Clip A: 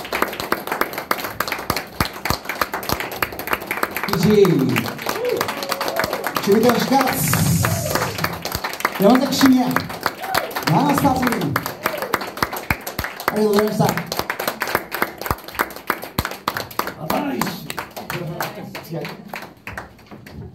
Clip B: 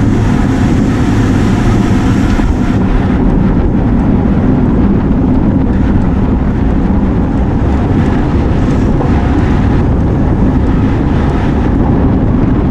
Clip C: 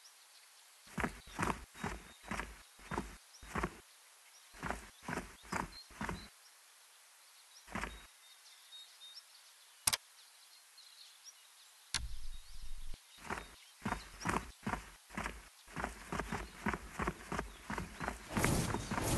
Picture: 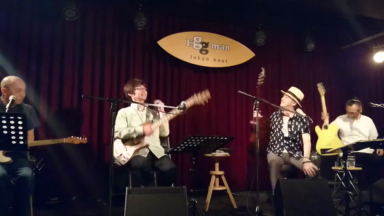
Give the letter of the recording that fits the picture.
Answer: A